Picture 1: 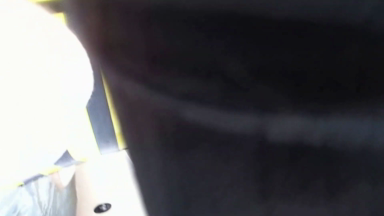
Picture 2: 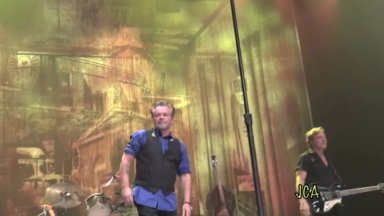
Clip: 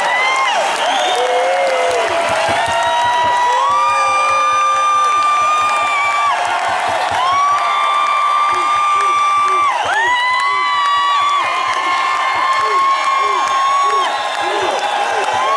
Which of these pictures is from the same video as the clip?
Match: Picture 2